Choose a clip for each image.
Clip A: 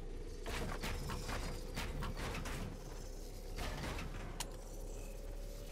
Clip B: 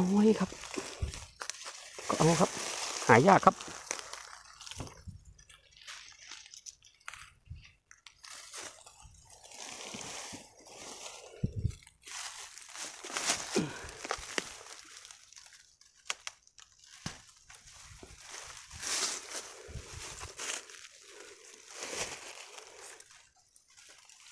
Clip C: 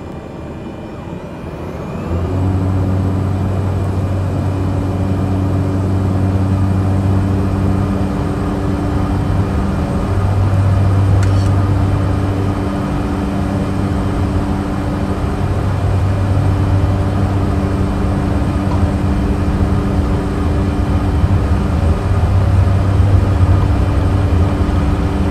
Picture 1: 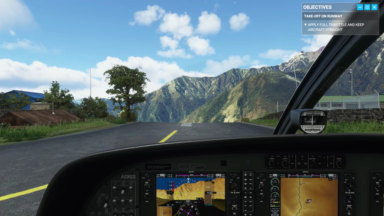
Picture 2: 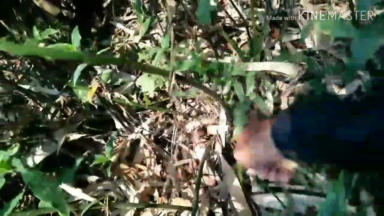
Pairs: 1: C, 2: B